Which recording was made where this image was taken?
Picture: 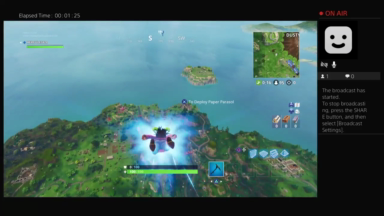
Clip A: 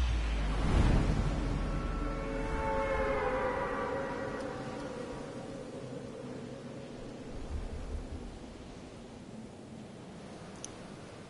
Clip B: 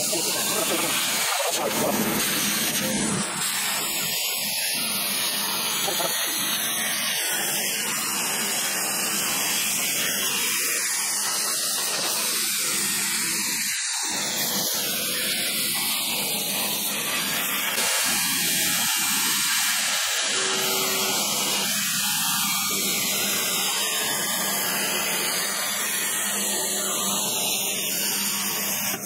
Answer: A